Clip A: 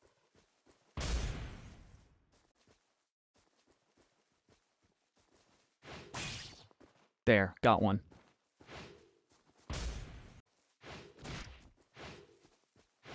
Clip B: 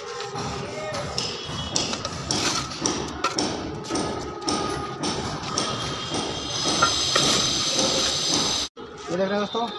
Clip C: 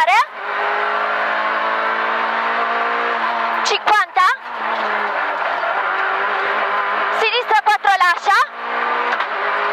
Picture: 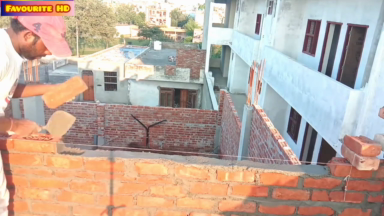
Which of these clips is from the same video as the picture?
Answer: B